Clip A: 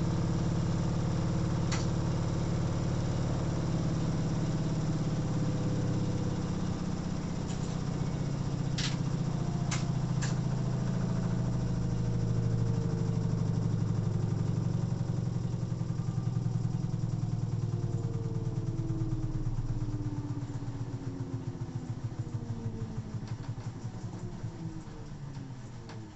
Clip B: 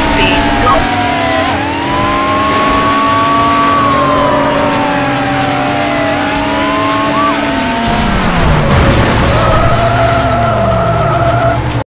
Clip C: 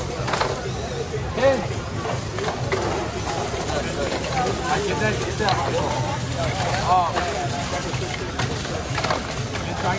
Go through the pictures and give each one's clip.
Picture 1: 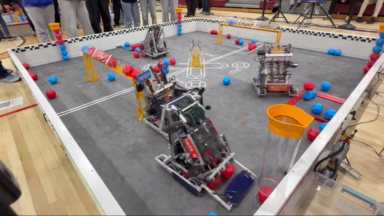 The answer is C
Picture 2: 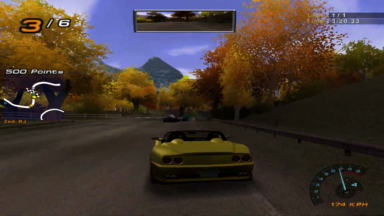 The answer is B